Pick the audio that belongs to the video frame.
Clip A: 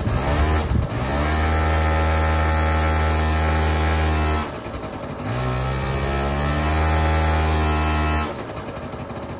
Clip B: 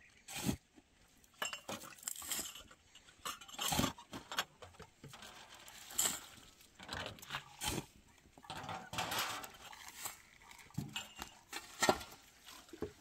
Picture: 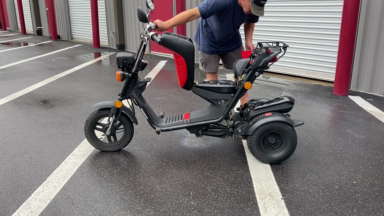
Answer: A